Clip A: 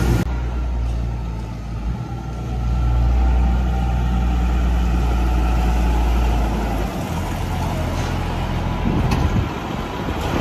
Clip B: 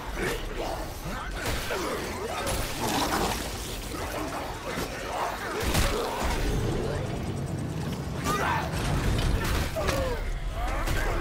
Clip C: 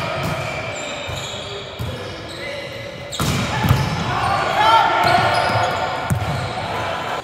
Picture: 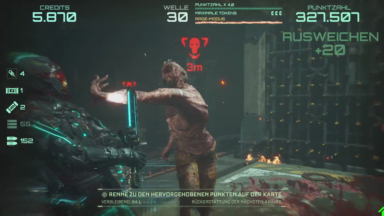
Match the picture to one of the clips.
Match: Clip B